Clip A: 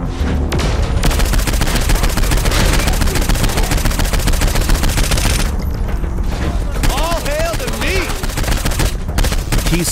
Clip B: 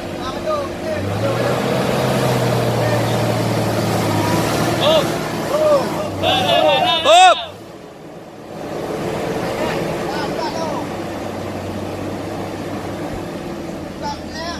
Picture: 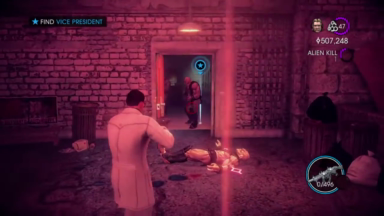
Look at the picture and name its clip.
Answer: A